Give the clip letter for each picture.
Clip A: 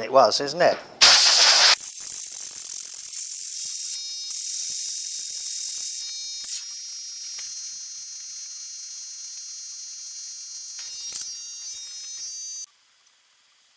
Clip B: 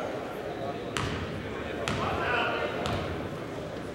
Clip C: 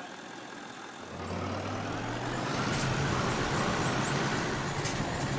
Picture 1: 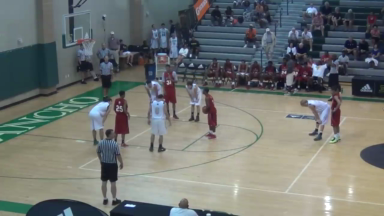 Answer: B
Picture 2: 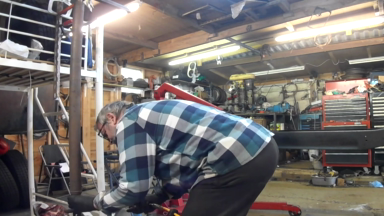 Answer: A